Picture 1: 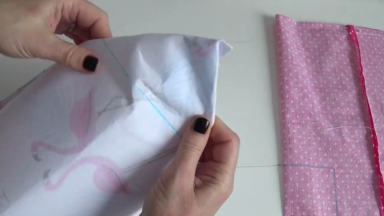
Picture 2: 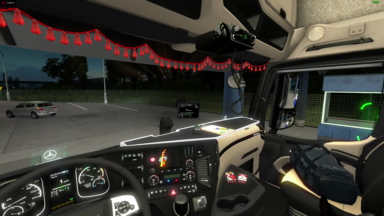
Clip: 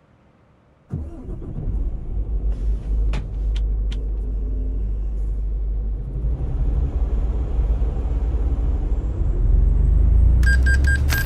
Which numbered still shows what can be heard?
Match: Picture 2